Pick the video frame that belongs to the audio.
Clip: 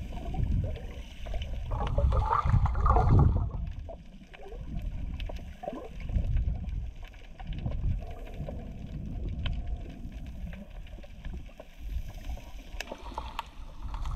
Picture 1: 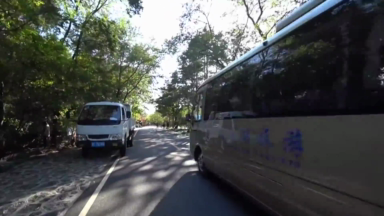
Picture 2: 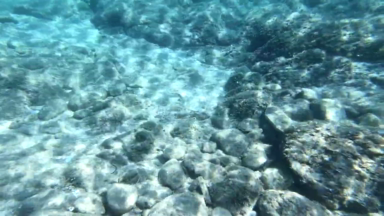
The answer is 2